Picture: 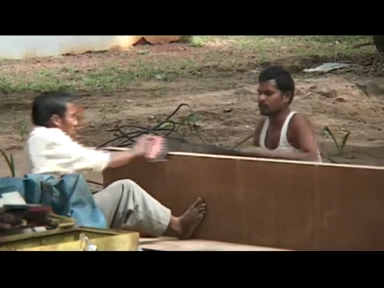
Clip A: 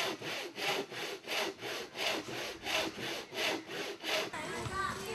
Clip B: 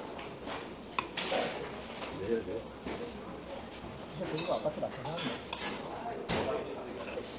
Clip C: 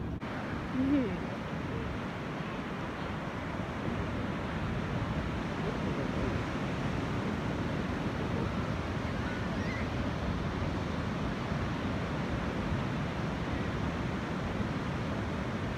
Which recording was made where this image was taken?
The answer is A